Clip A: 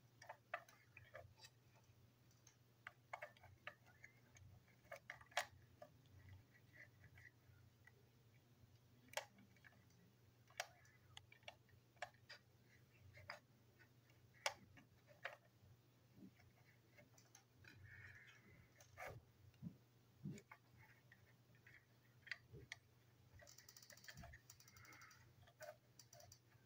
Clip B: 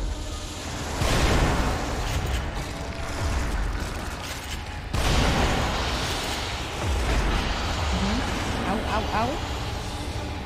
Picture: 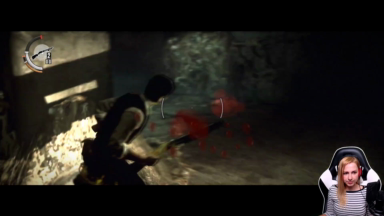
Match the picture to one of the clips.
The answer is B